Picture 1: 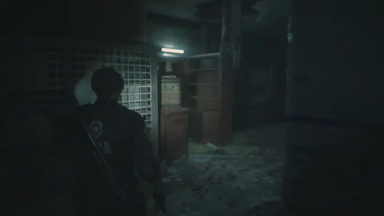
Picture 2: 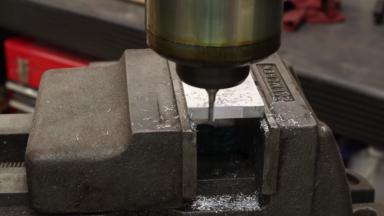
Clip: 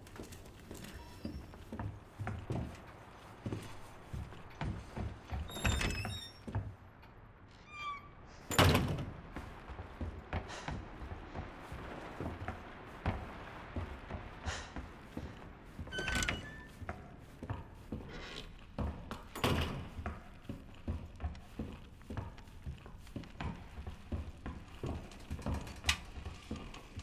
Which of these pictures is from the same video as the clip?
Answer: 1